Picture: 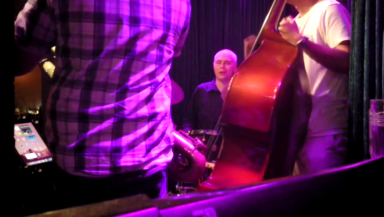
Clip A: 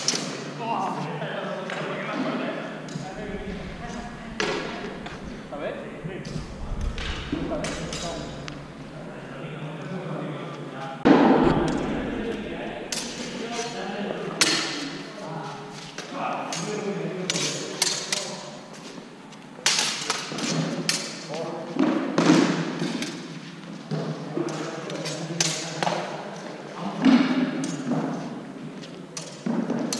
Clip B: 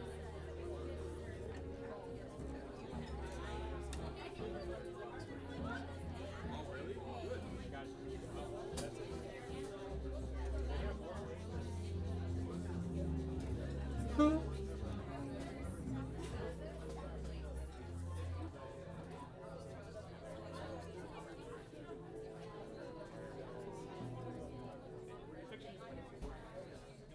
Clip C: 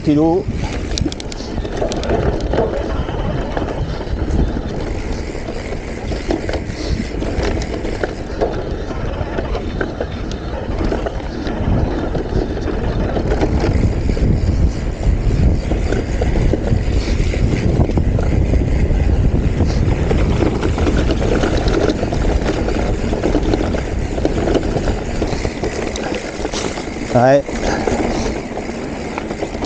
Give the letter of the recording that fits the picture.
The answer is B